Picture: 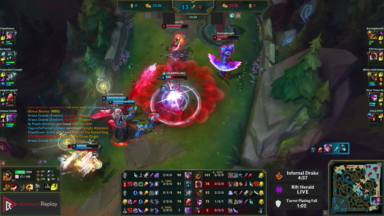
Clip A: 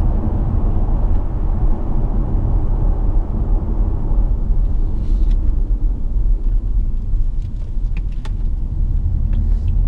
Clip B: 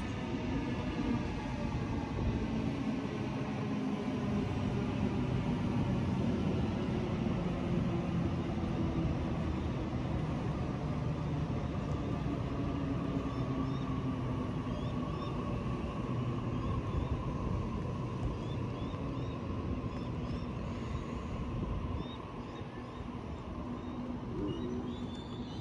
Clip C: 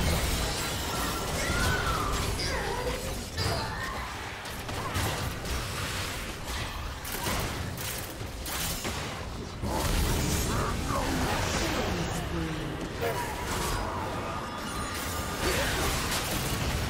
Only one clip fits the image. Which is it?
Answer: C